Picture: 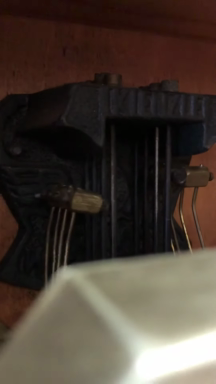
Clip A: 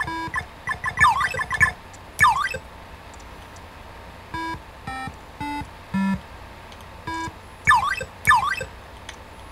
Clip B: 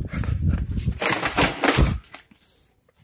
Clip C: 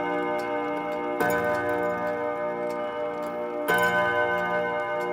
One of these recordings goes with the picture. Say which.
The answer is C